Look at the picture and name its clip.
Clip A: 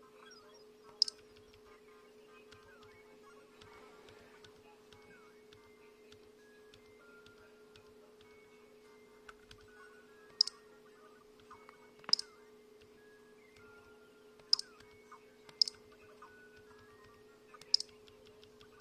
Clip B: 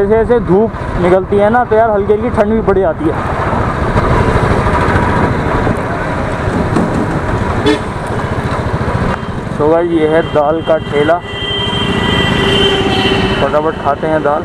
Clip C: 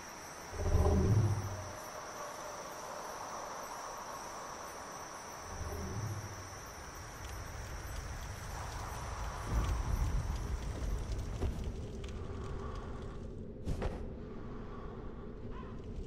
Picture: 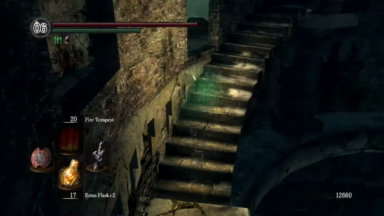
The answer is C